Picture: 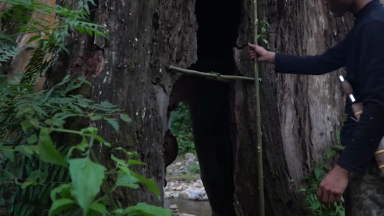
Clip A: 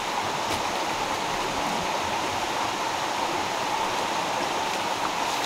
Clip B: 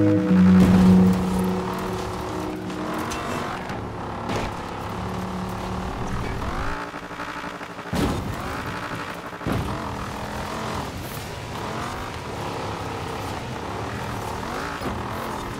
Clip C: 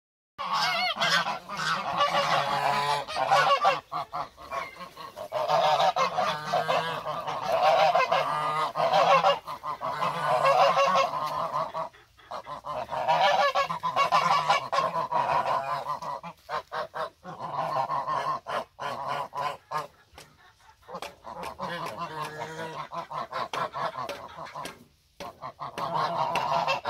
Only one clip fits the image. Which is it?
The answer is A